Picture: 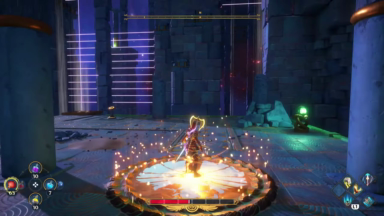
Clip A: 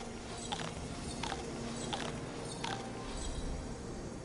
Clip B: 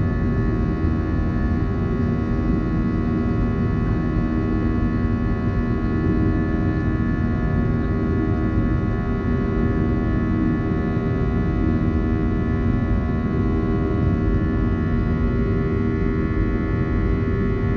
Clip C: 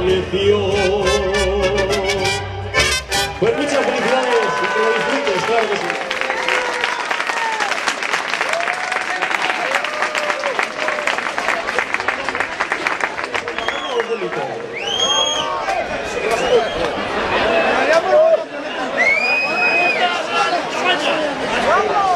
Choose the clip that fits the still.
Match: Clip A